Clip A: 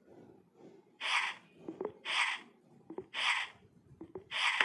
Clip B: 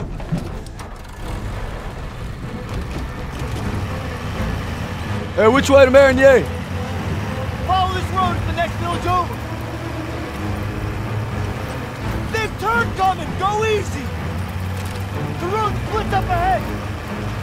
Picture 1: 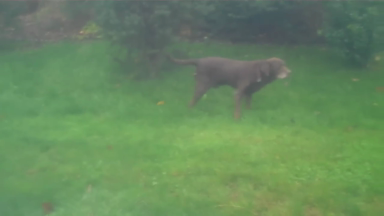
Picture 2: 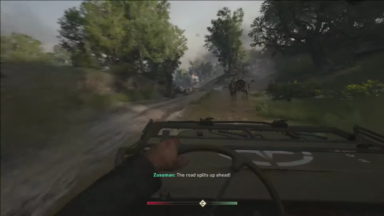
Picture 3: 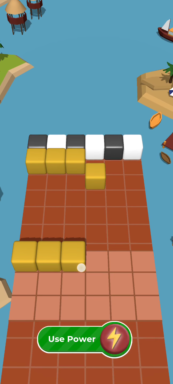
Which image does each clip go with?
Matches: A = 3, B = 2